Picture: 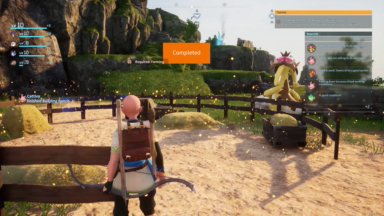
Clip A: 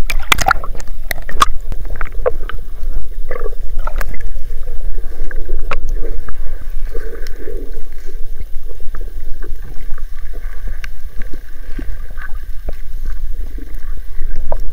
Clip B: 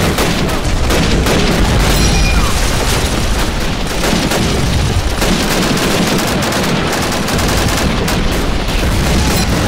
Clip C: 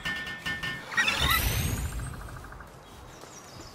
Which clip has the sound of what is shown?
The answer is C